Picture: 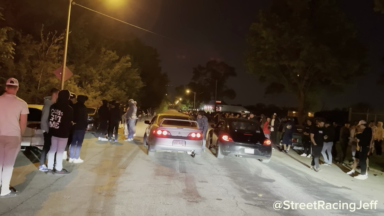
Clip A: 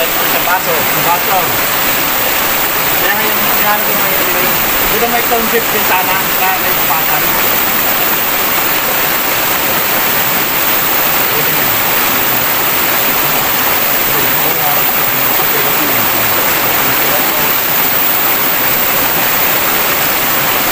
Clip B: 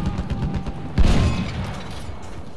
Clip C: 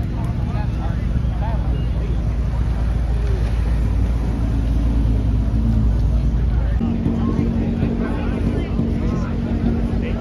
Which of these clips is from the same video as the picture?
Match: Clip C